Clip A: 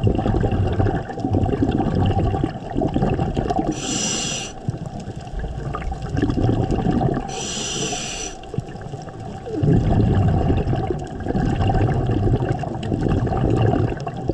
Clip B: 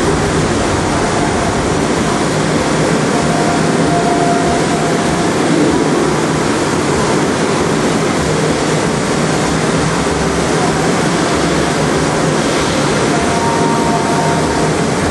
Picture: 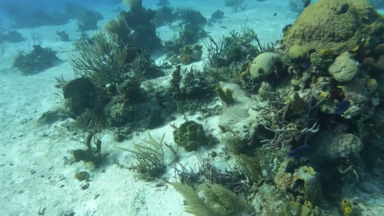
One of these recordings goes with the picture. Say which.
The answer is A